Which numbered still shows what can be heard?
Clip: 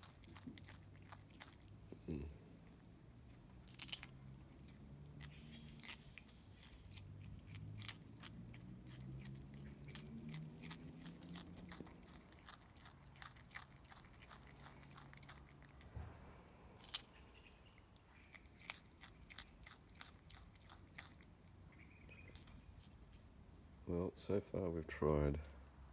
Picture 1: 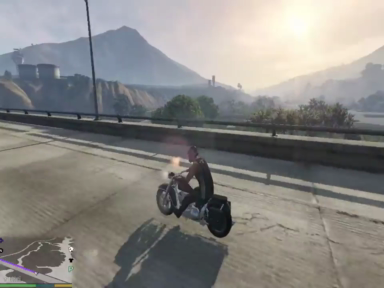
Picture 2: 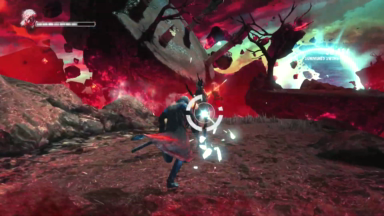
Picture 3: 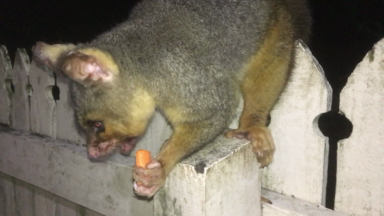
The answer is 3